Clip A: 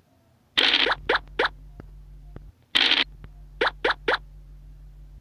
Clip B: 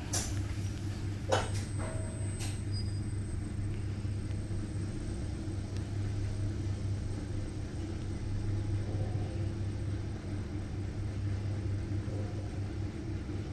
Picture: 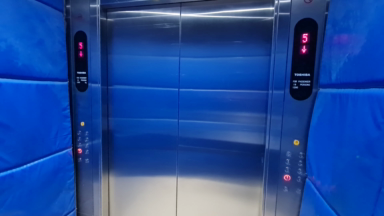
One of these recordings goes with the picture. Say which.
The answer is B